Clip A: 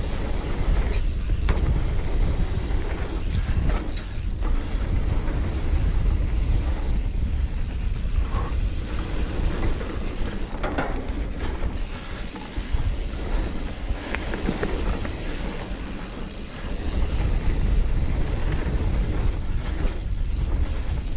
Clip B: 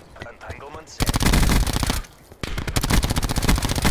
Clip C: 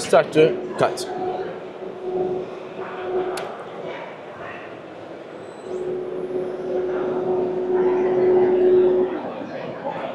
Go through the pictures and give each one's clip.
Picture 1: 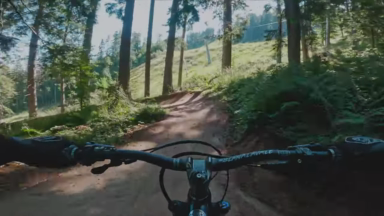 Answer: A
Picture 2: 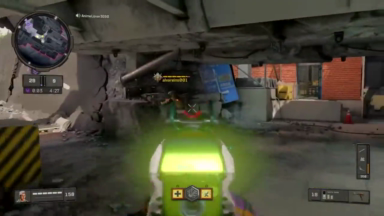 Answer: B